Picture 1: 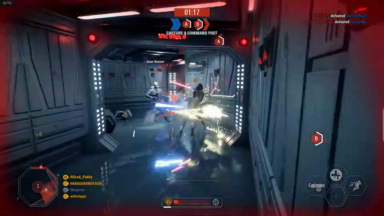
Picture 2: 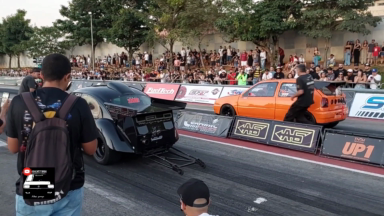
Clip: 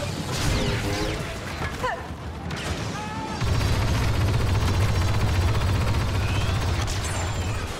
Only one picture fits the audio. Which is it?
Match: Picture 1